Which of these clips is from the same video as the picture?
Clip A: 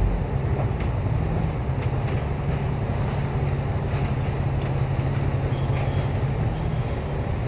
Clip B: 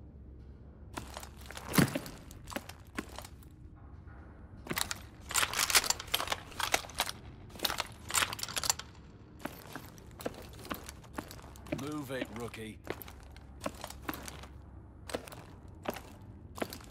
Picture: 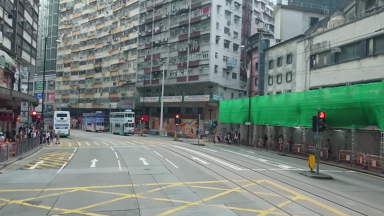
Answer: A